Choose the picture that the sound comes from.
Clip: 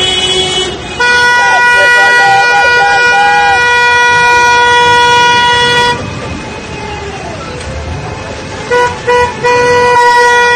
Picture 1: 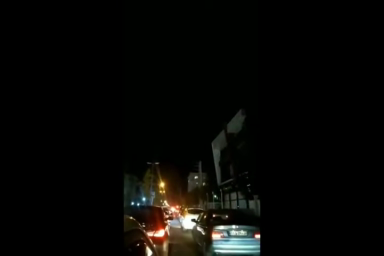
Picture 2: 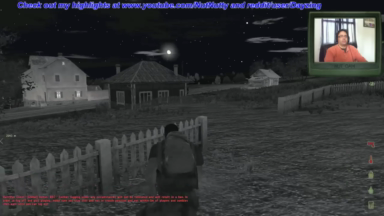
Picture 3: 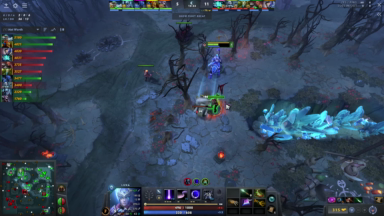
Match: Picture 1